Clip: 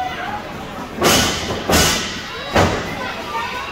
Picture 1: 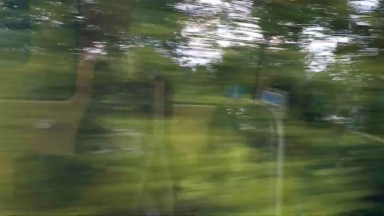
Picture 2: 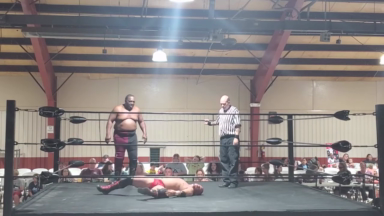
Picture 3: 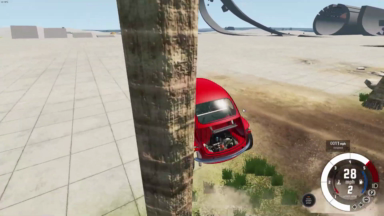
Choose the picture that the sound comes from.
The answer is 2